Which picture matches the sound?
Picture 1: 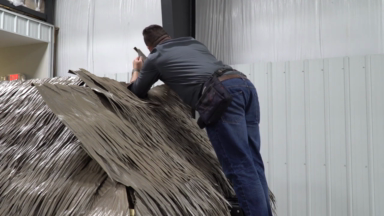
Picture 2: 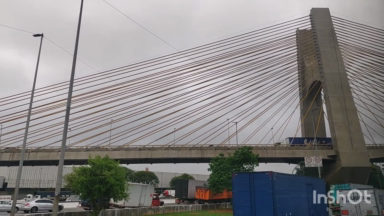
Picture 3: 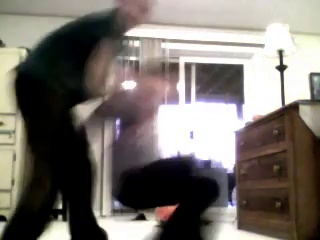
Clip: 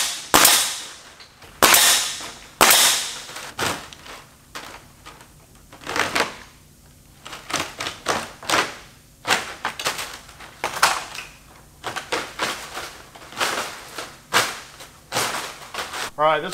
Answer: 1